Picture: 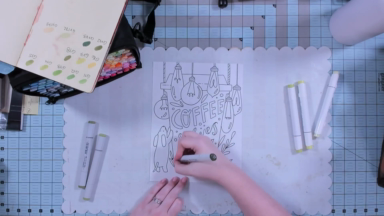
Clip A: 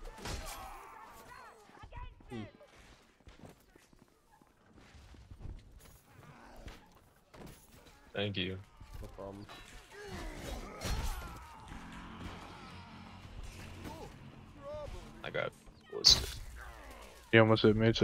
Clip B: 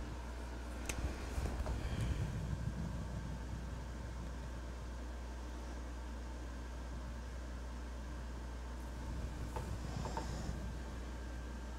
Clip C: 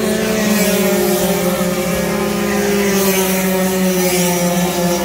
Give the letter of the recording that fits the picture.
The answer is B